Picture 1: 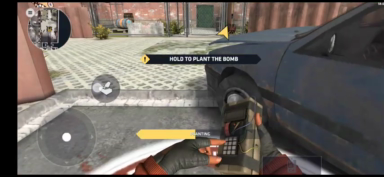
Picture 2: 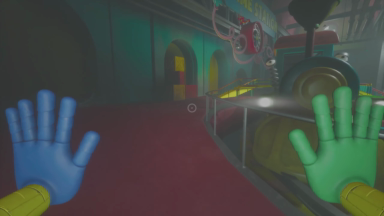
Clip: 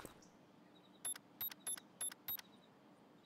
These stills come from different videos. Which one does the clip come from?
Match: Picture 1